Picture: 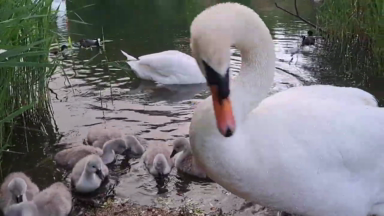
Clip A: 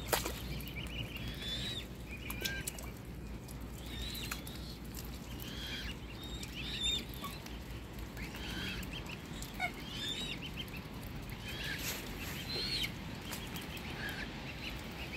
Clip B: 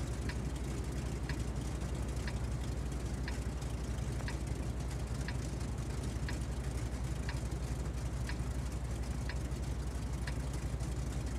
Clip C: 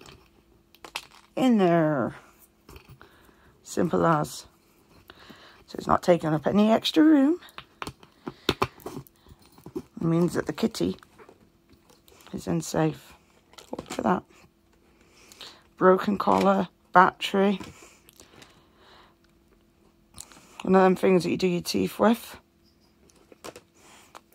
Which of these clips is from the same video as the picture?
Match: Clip A